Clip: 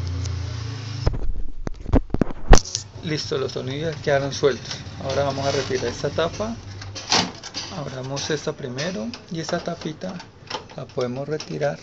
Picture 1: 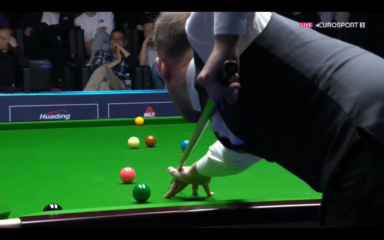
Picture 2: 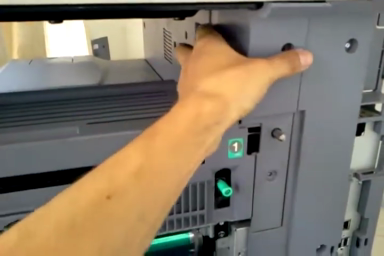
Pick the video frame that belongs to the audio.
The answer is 2